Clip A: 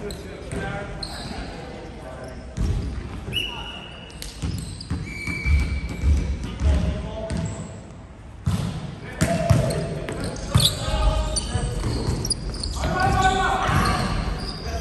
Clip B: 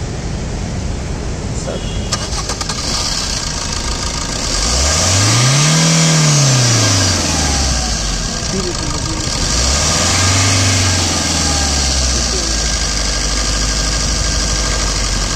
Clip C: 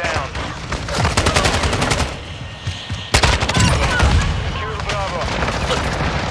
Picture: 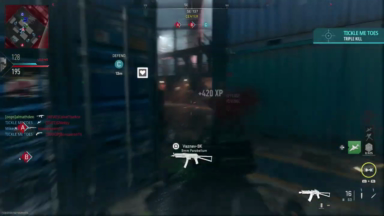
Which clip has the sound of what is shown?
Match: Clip C